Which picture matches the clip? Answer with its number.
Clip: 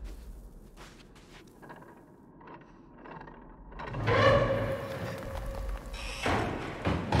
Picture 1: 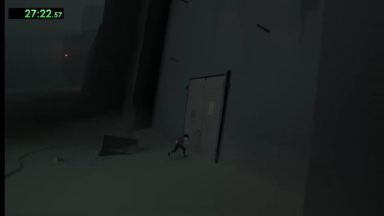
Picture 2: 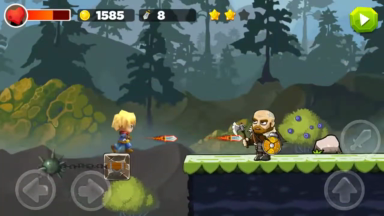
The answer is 1